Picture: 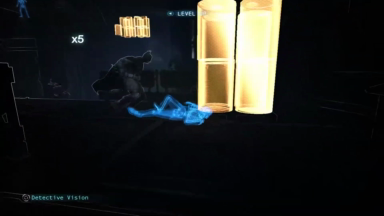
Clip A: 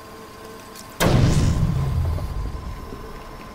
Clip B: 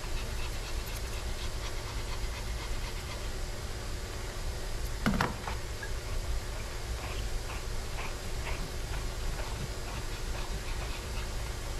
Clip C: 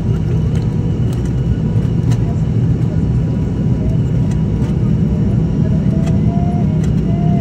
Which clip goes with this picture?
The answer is A